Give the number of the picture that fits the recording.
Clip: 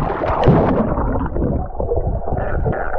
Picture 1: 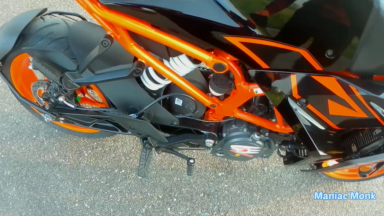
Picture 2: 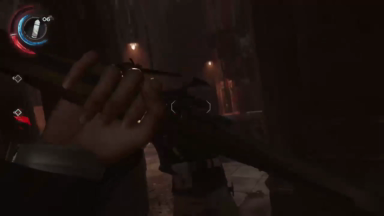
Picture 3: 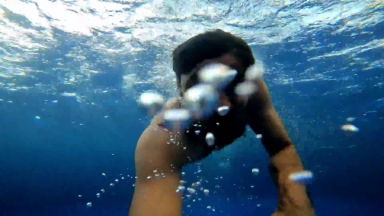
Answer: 3